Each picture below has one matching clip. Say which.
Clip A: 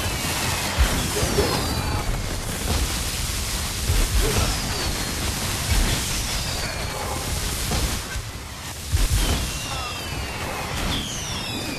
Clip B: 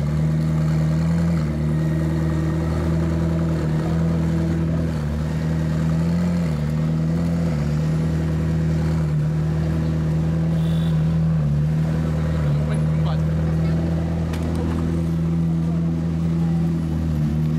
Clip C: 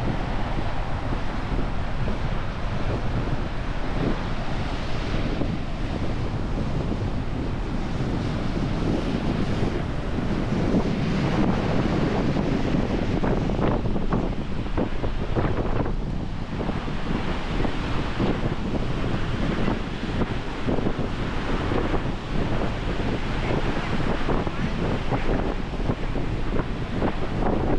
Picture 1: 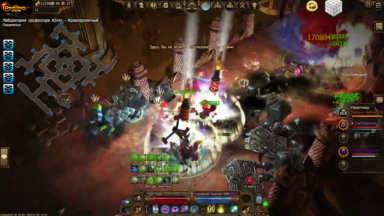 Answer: A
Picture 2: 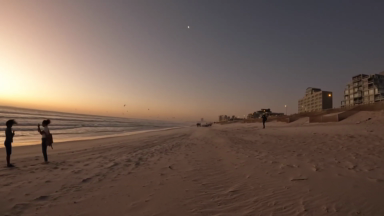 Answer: C